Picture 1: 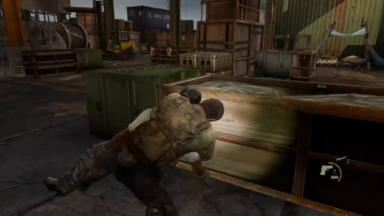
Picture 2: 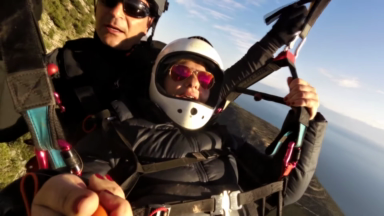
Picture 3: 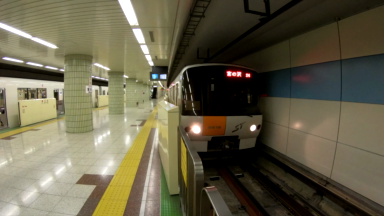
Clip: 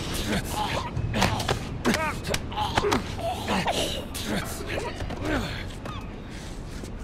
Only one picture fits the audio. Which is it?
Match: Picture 1